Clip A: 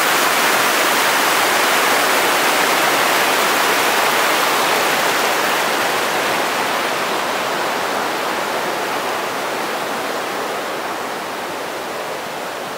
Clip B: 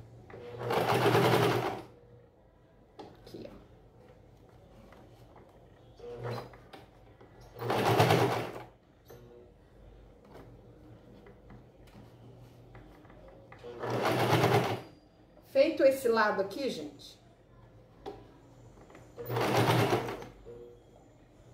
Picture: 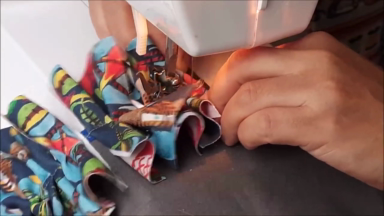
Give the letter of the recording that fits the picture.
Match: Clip B